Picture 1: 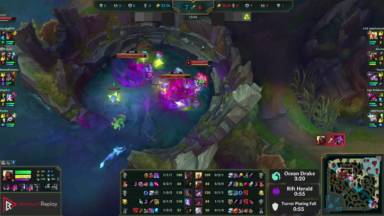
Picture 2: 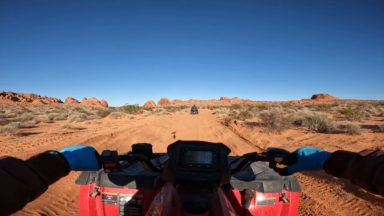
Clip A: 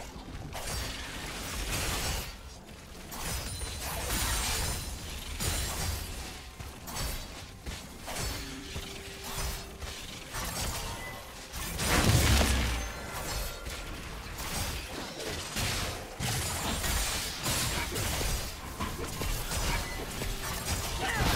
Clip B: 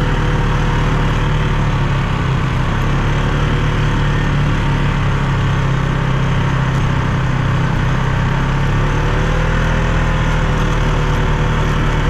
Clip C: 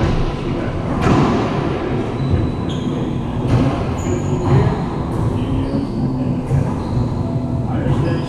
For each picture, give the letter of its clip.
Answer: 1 A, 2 B